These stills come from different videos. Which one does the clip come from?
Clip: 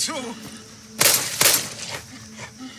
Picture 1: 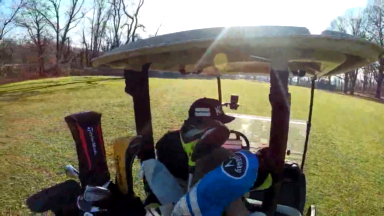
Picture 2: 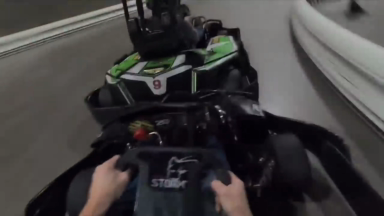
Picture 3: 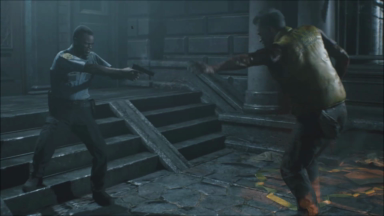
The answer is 3